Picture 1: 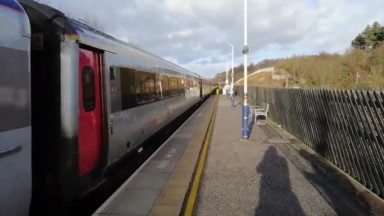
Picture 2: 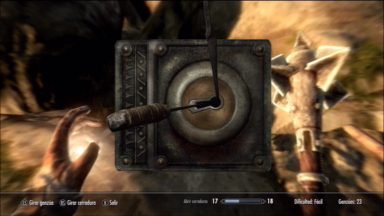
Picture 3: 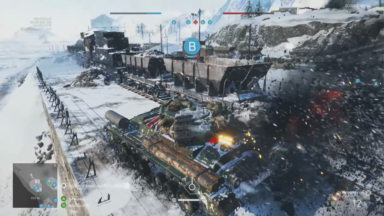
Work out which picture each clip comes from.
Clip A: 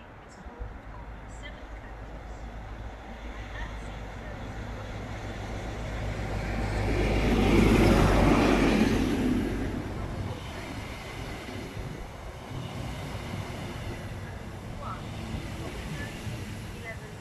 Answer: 1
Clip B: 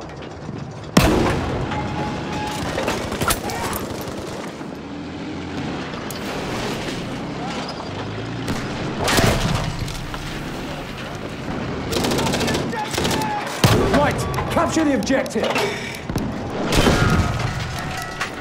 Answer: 3